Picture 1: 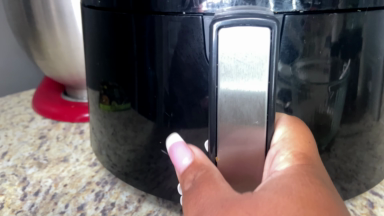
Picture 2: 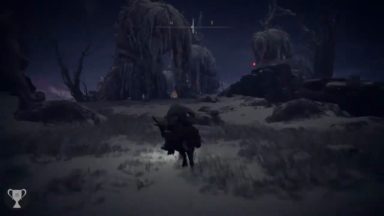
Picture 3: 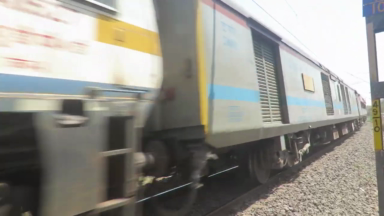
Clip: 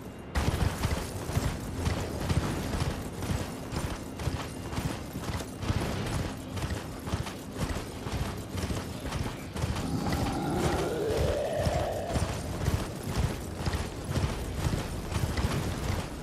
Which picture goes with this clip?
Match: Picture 2